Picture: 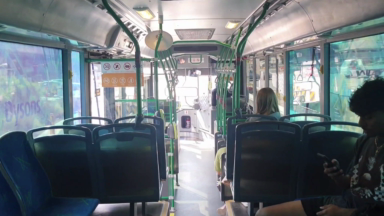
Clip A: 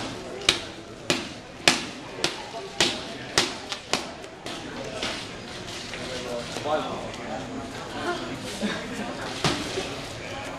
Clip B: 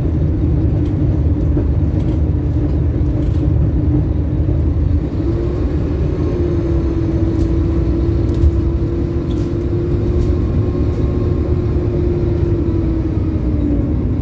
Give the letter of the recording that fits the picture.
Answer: B